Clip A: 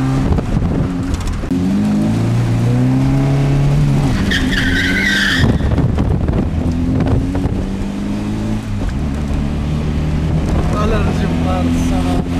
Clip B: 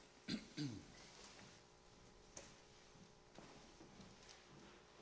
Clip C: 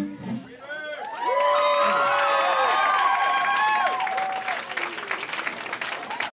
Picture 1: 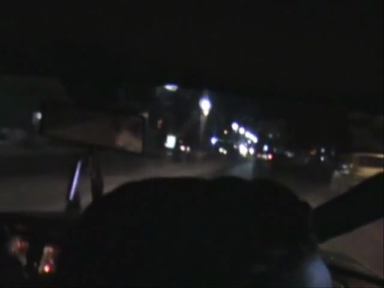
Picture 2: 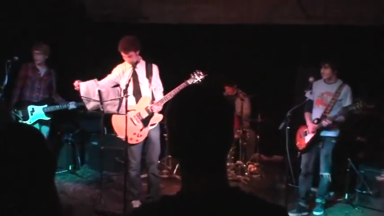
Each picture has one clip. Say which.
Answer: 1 A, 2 C